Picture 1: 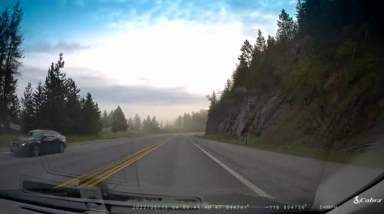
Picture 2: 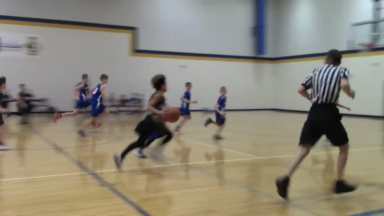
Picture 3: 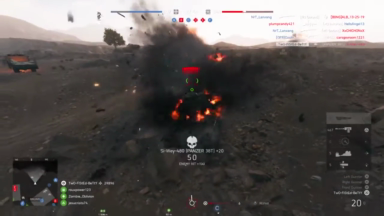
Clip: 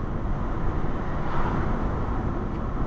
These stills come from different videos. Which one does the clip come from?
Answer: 1